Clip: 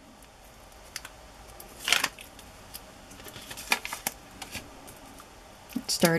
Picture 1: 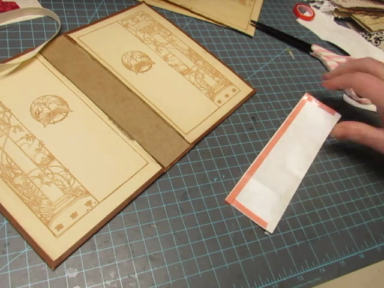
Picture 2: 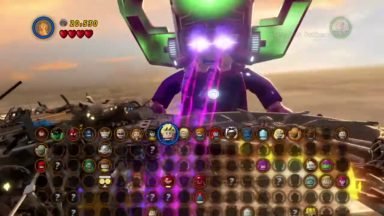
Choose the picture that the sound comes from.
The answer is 1